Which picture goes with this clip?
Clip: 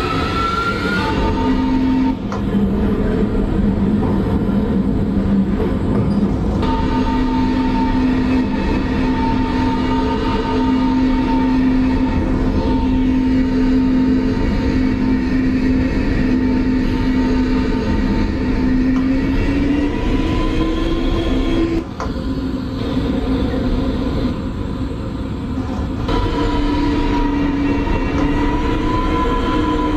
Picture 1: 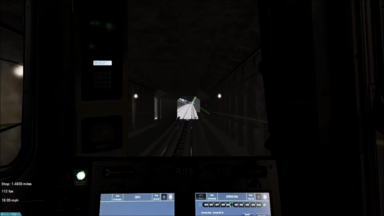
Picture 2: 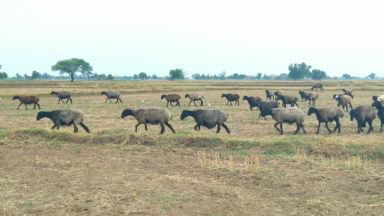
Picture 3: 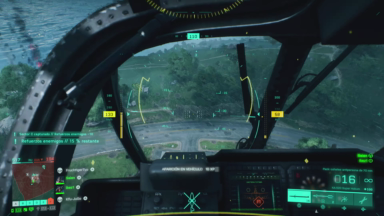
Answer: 1